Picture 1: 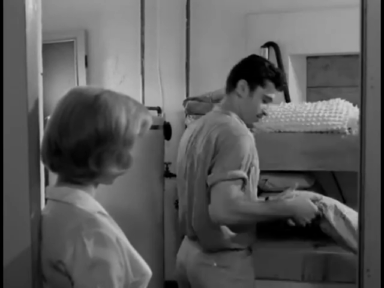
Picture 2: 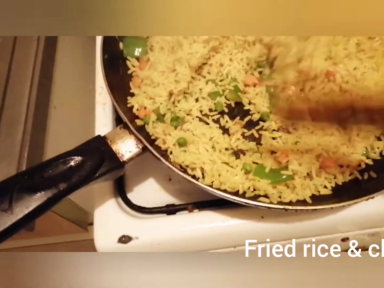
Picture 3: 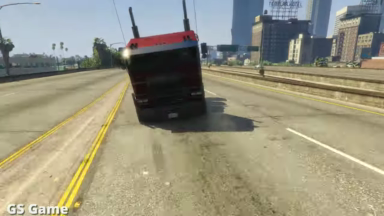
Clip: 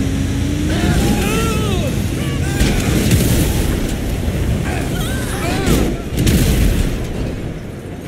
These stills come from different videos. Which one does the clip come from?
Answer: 3